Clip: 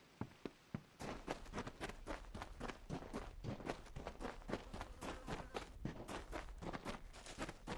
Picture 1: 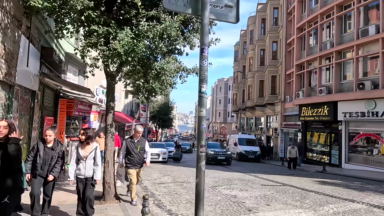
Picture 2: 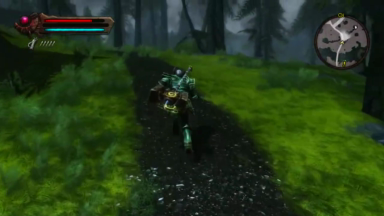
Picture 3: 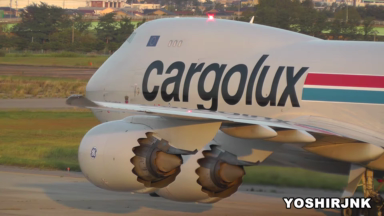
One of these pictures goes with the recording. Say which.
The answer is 2